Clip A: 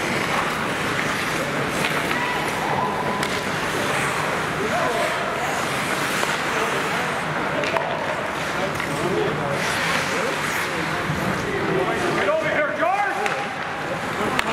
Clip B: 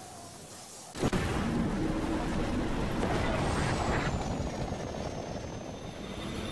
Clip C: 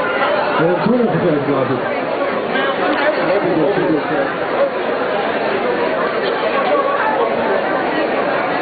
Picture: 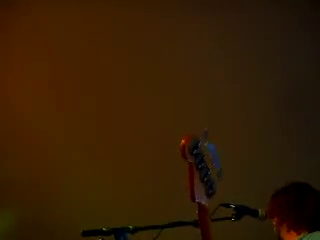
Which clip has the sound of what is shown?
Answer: C